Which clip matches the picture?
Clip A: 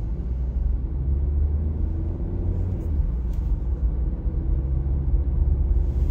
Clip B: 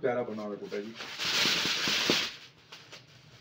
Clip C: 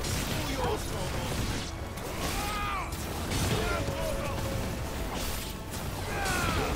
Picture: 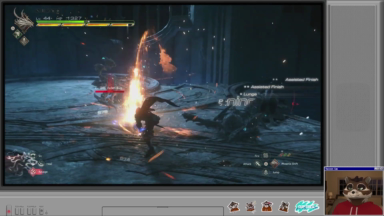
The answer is C